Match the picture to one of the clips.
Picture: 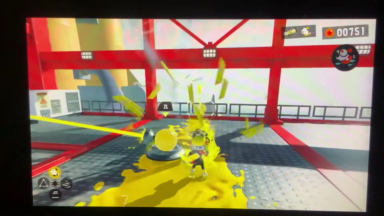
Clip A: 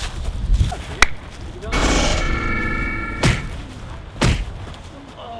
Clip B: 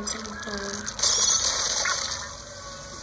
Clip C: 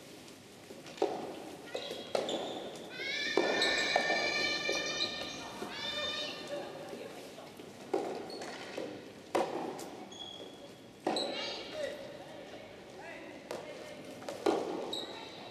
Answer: B